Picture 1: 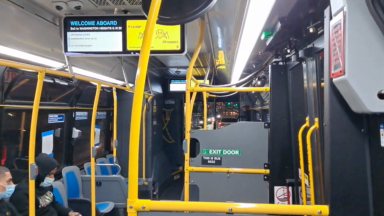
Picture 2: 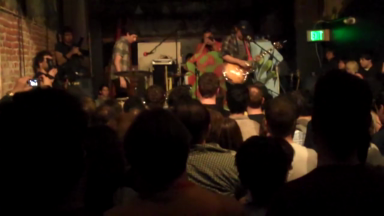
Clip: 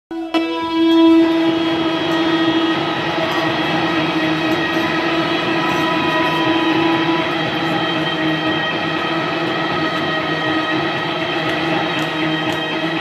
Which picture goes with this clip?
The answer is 2